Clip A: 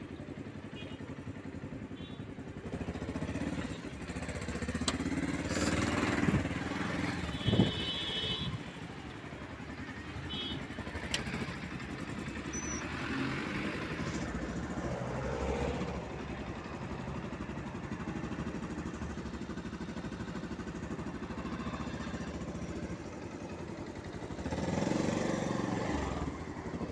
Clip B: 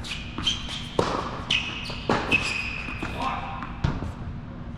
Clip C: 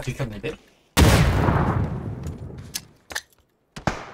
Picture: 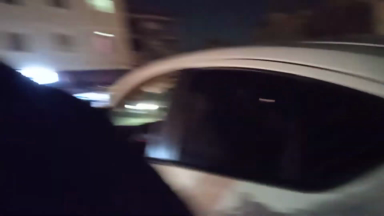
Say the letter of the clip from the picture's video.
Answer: A